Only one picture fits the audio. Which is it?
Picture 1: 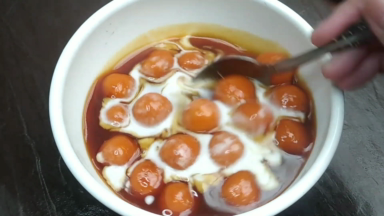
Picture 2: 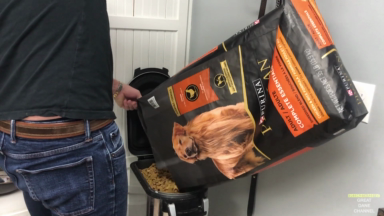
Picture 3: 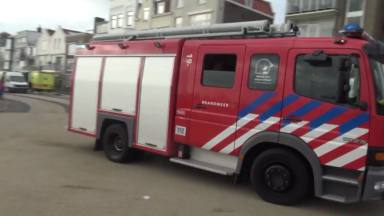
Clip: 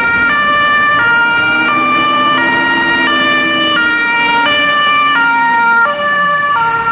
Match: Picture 3